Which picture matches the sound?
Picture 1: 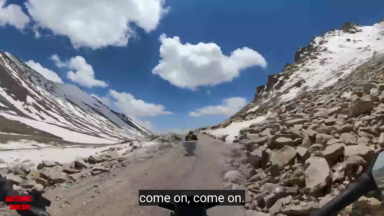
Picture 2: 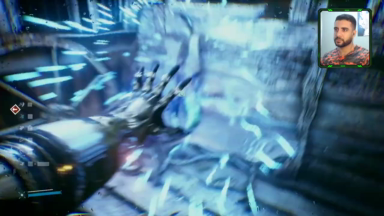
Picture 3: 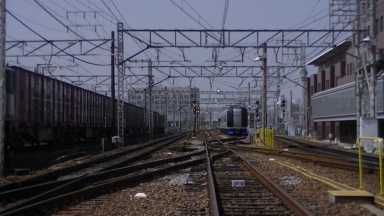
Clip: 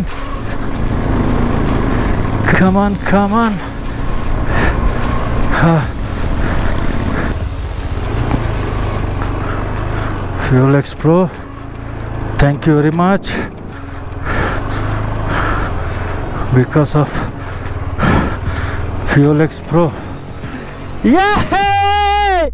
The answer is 1